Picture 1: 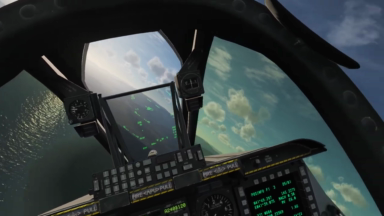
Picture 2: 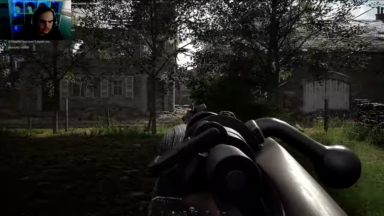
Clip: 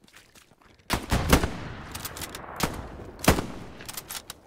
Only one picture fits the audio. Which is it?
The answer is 2